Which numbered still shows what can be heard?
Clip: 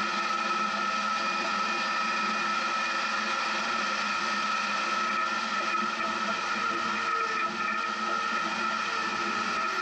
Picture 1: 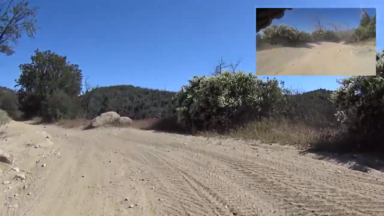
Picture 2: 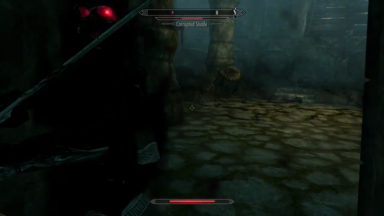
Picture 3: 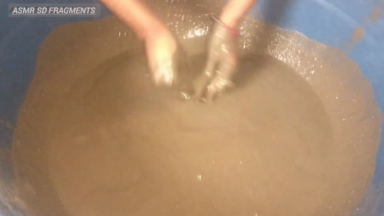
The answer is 1